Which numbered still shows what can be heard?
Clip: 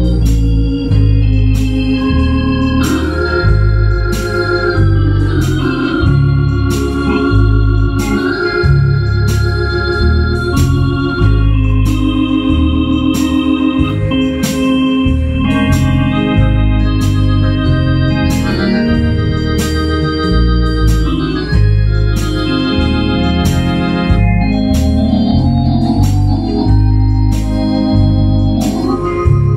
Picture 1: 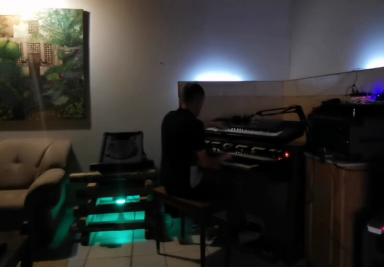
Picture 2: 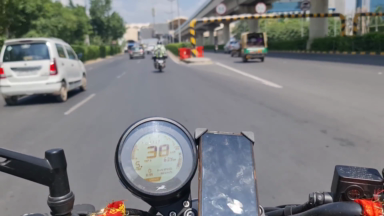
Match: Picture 1